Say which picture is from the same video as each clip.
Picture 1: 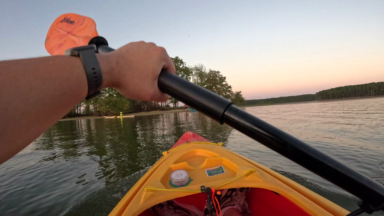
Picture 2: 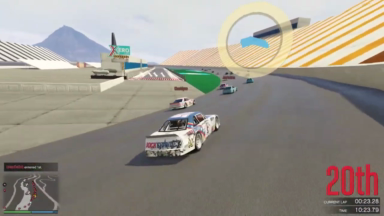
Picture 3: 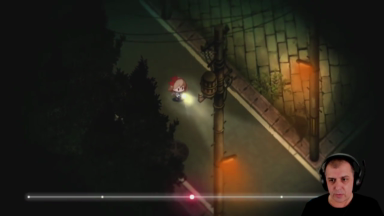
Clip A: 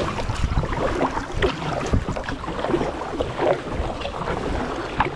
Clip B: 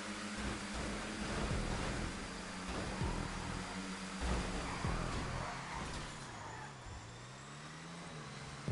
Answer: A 1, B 2